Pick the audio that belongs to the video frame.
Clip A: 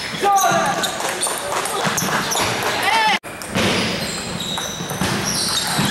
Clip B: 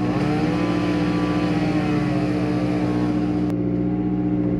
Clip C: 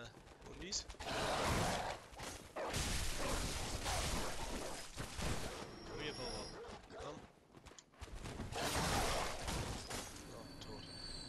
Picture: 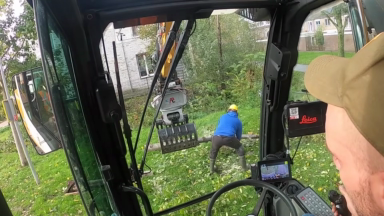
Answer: B